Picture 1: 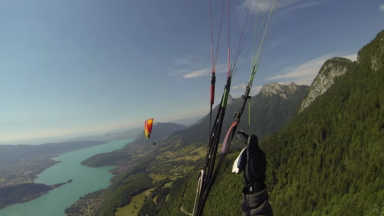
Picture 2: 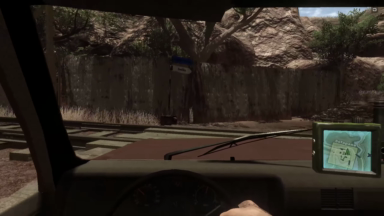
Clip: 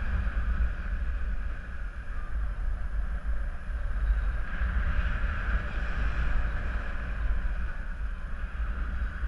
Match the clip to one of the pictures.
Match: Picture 1